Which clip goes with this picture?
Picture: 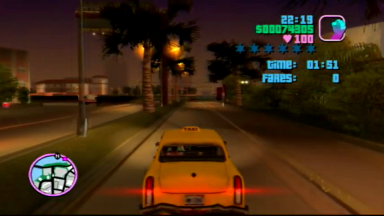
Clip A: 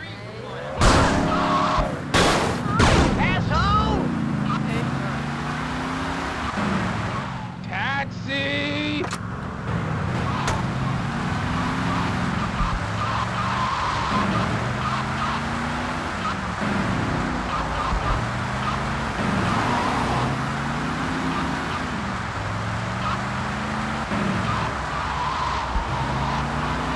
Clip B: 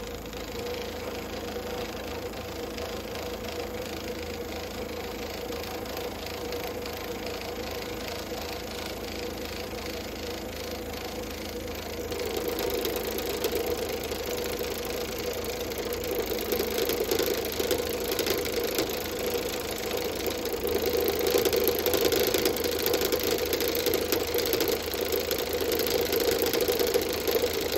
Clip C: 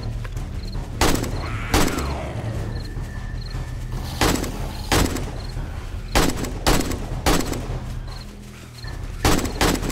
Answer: A